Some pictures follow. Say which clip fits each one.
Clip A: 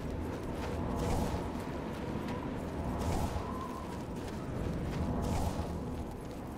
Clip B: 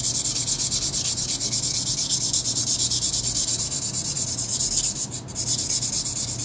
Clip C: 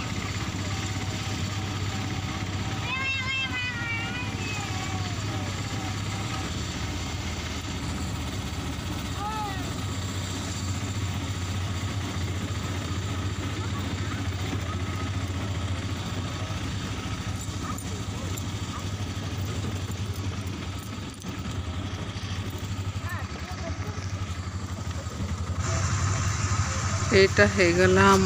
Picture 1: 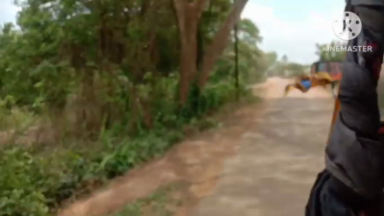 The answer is C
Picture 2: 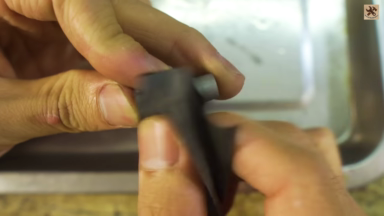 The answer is B